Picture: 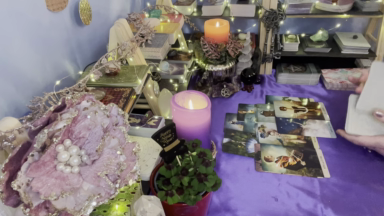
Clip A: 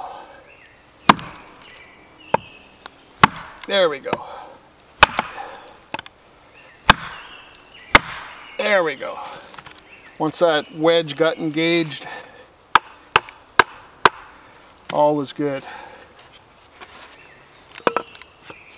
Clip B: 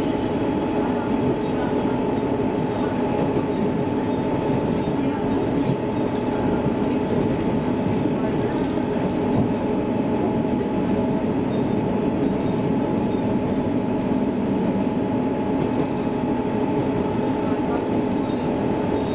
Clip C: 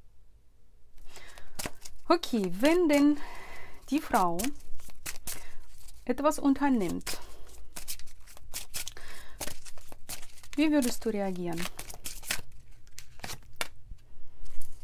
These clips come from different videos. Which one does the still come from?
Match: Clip C